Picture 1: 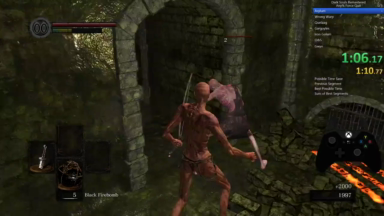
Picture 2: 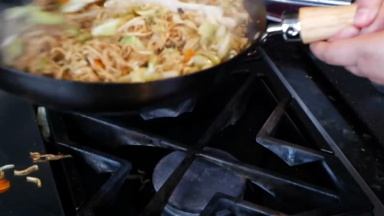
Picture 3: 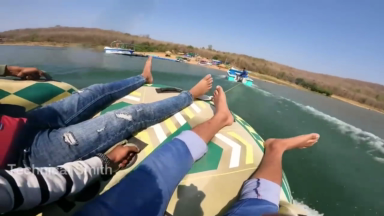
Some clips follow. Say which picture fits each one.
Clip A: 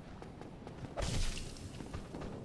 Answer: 1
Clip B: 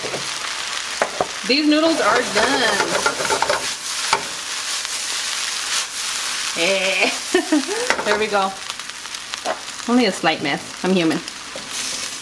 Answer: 2